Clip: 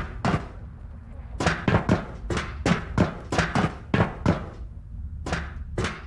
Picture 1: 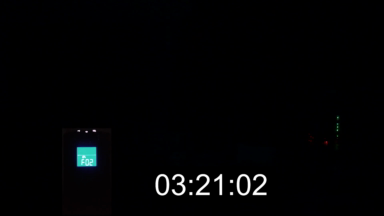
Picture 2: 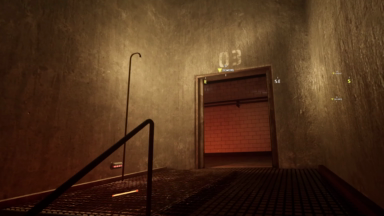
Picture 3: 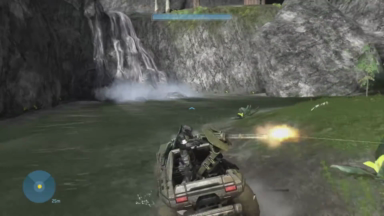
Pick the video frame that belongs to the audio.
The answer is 2